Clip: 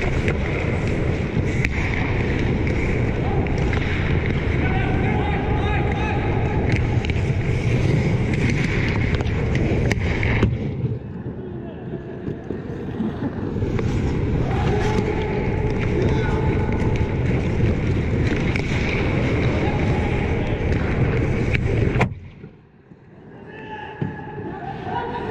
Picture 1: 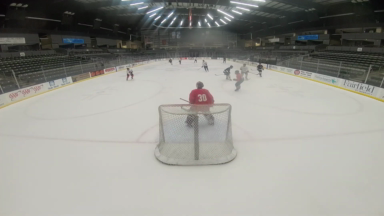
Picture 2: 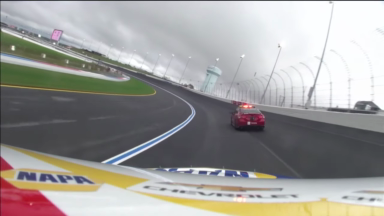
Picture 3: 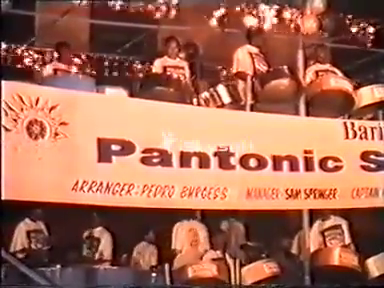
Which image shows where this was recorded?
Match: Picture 1